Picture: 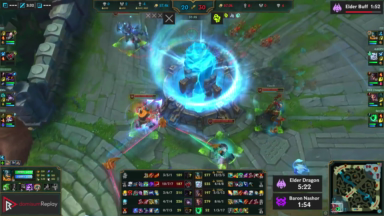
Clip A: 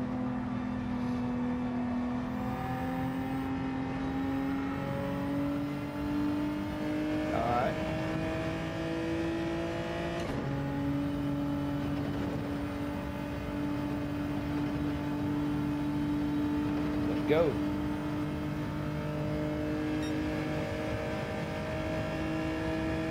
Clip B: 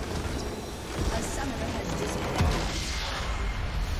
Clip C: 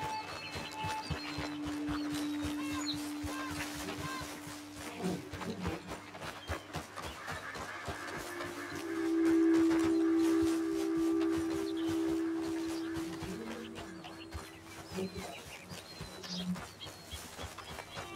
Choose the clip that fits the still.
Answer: B